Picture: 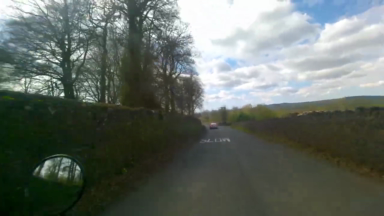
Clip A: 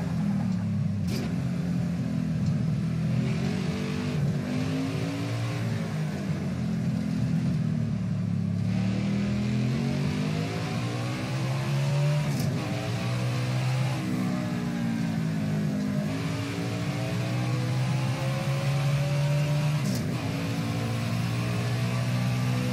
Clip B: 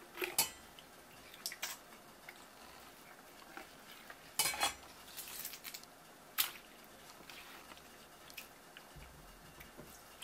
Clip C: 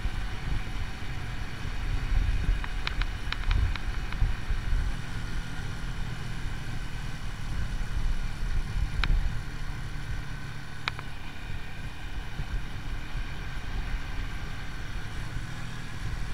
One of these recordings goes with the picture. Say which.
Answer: C